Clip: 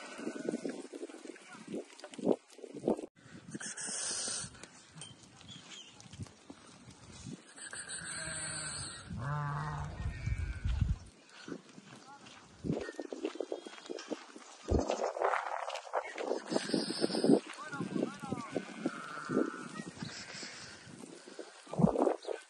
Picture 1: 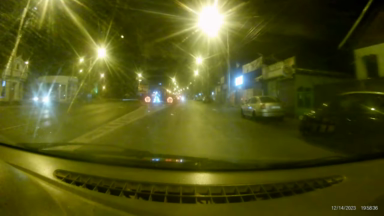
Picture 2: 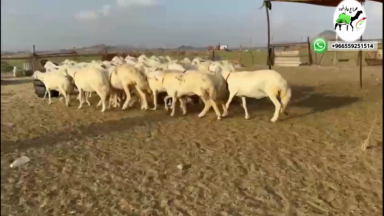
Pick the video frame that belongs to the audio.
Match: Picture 2